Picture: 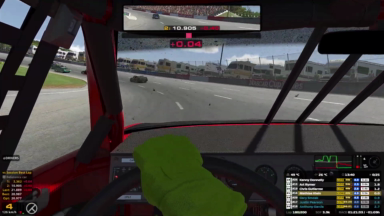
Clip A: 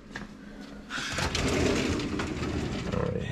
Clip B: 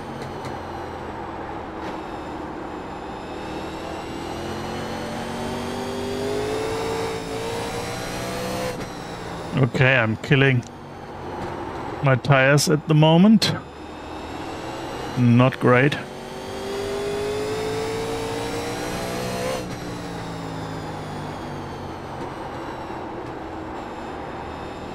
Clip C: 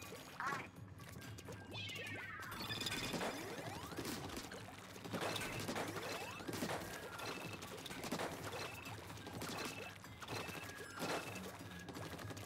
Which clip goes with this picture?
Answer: B